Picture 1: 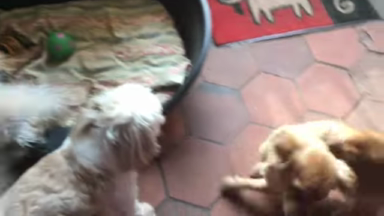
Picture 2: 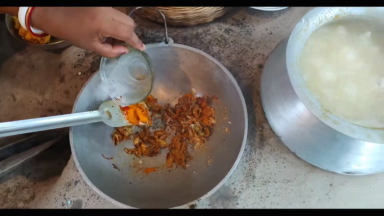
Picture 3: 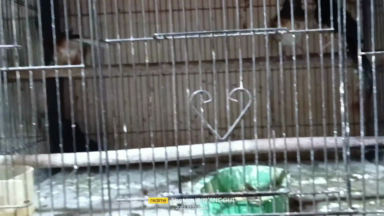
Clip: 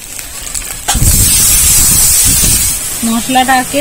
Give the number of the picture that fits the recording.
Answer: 2